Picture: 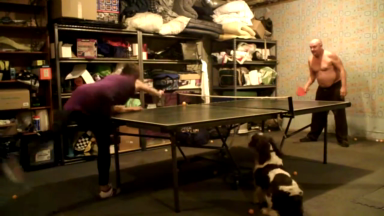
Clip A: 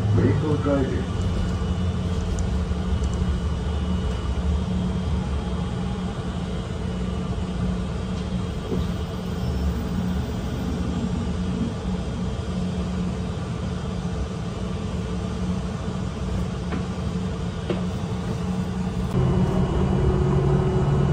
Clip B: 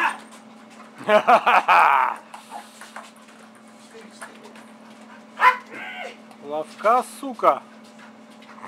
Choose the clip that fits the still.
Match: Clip B